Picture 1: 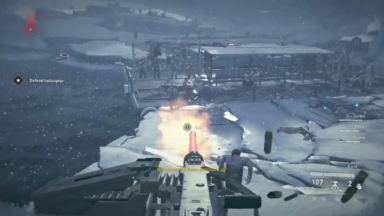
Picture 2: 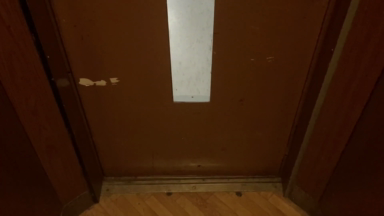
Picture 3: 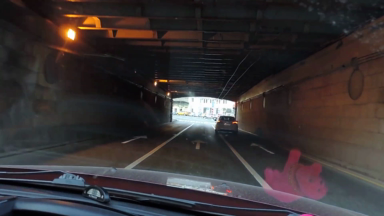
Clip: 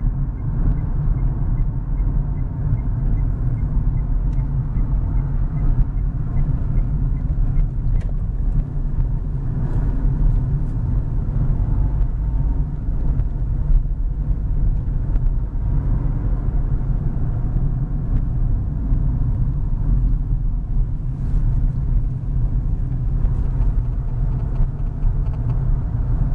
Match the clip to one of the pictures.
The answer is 3